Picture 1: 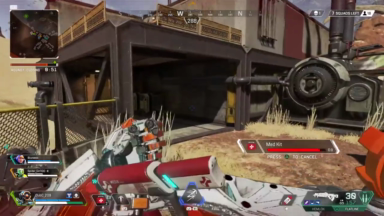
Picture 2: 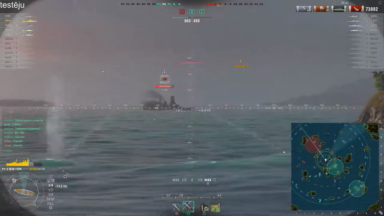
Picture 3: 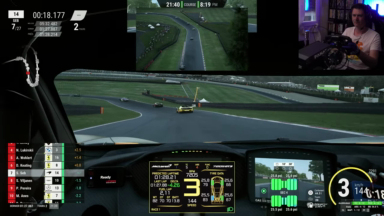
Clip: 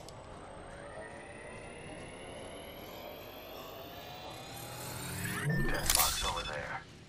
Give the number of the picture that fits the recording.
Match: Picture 1